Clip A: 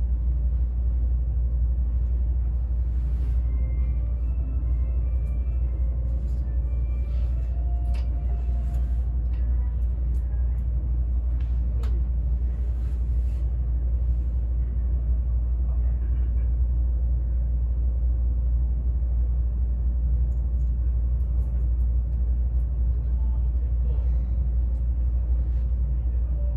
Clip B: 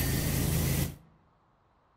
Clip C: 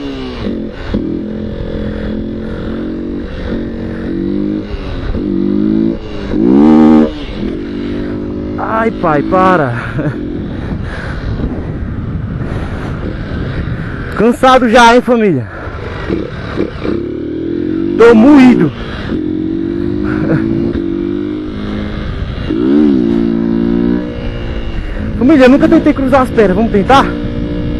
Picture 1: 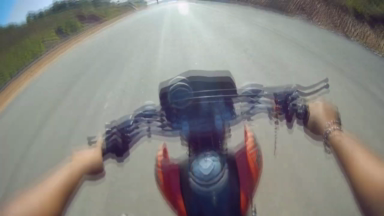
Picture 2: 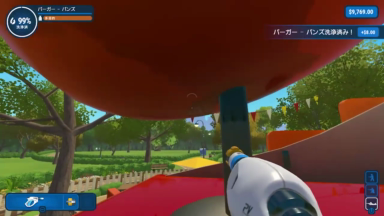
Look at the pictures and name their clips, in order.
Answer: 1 C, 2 B